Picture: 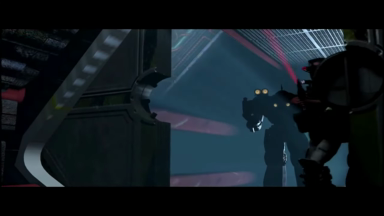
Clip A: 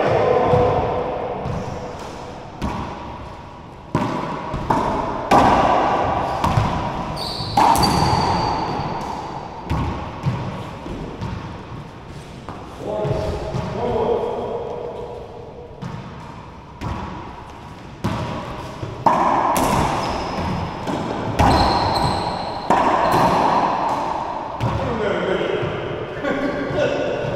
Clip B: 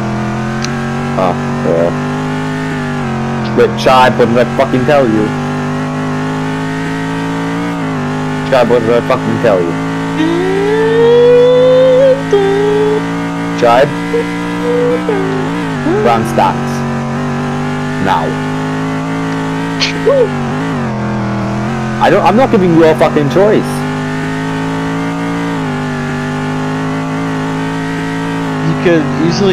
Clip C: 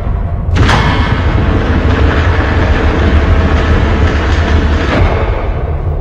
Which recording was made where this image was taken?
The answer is C